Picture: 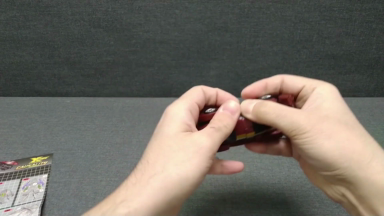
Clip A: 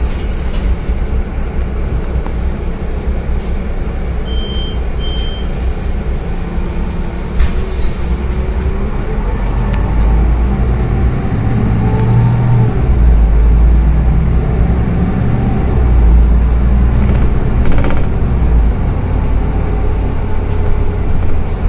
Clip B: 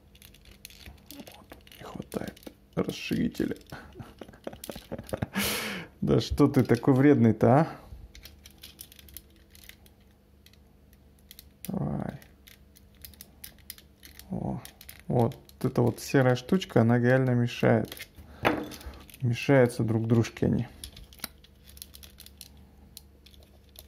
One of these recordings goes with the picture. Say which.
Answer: B